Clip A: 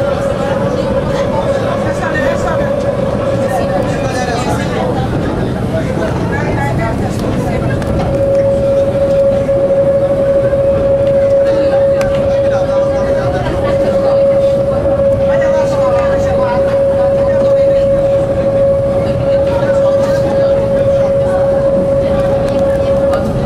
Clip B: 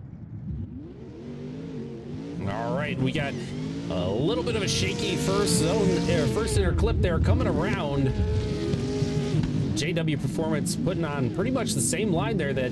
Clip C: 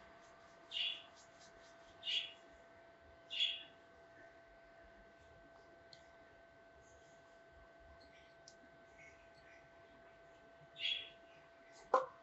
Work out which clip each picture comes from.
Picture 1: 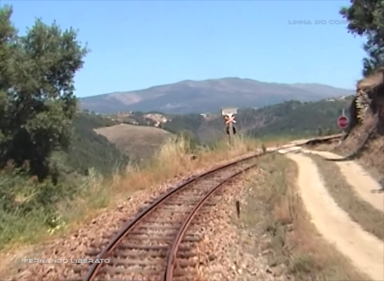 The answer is A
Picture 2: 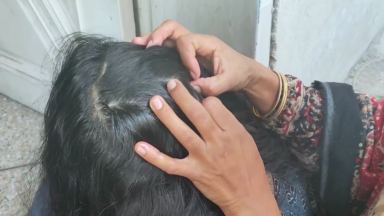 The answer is C